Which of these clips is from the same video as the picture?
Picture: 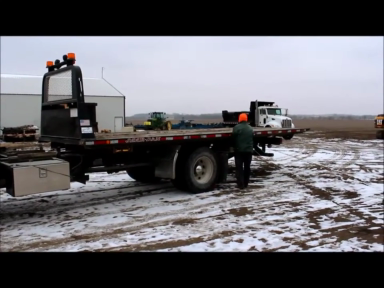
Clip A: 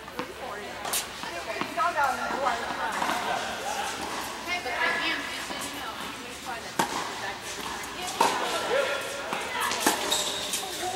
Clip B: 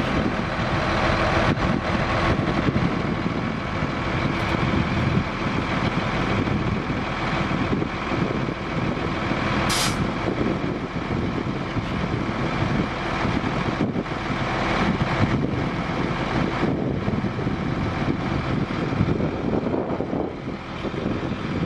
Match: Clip B